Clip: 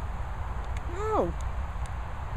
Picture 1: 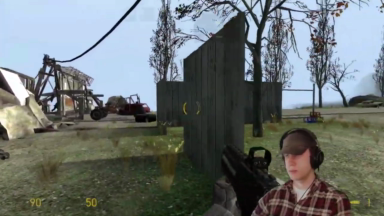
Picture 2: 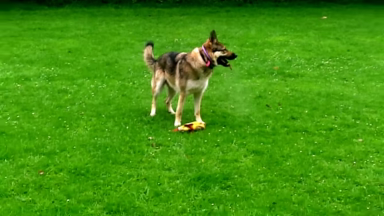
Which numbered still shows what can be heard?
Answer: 2